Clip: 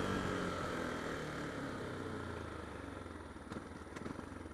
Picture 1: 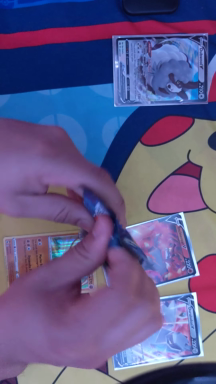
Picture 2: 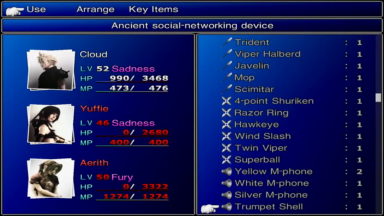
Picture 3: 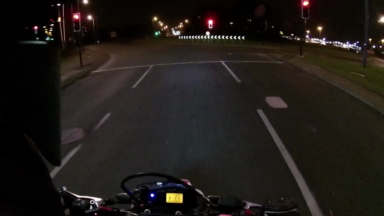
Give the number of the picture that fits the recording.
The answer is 3